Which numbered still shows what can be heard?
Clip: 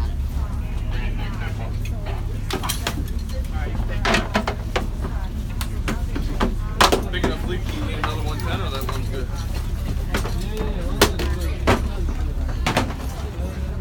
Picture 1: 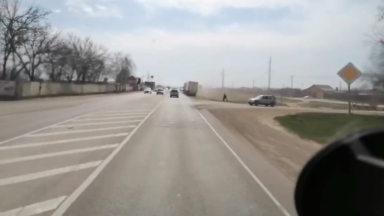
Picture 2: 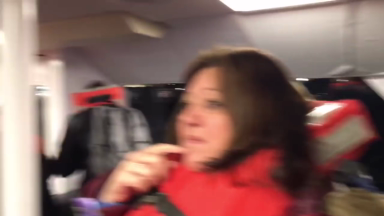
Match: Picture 2